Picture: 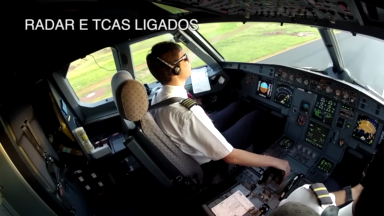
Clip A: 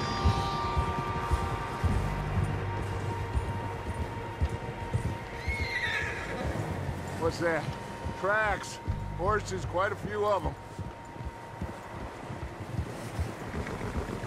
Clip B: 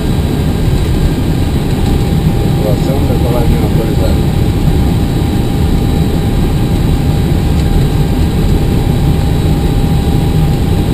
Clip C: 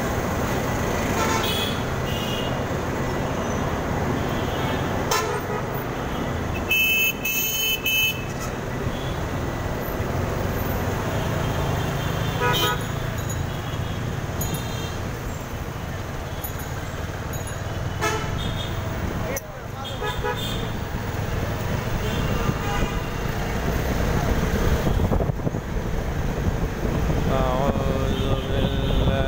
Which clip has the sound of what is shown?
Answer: B